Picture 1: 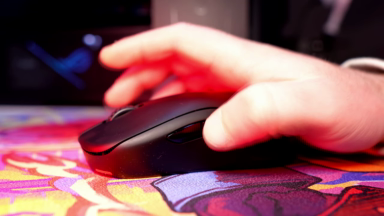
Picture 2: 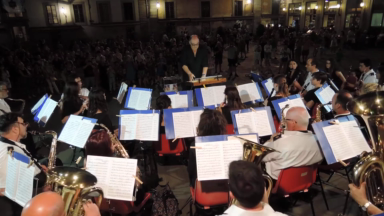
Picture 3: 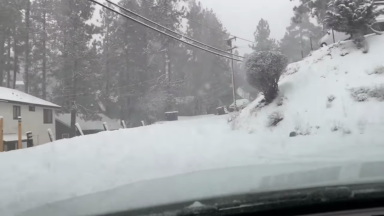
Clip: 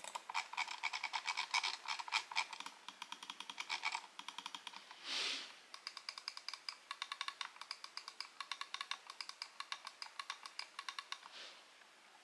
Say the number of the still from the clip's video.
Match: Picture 1